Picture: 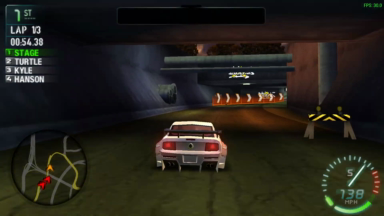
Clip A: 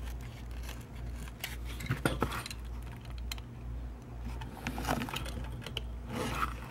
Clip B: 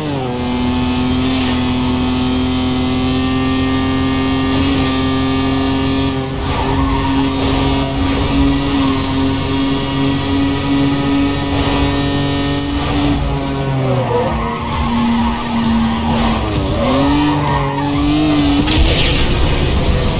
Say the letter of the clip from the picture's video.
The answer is B